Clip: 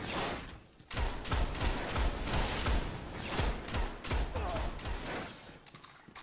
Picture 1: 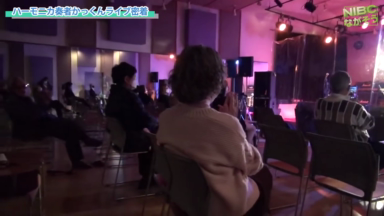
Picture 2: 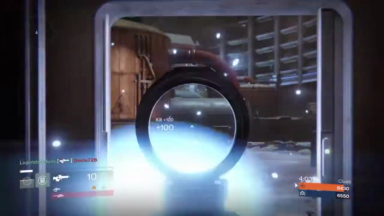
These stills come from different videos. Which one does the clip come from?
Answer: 2